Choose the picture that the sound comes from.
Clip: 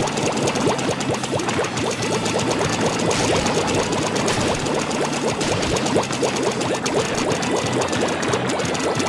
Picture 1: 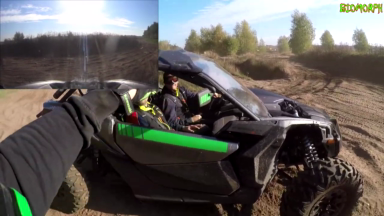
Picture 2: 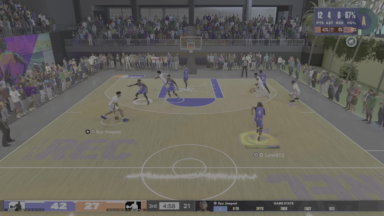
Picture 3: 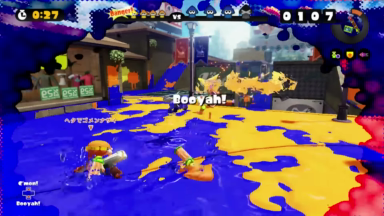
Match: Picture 3